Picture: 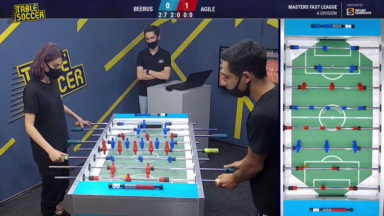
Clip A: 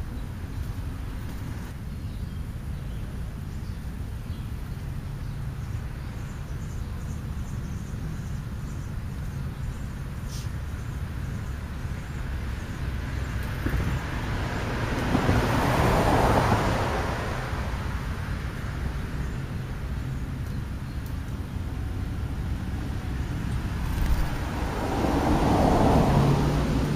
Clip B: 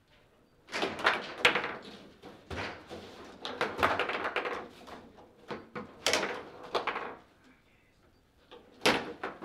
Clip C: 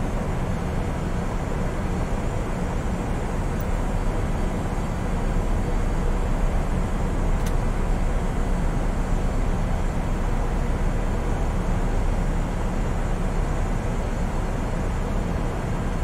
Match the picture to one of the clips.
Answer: B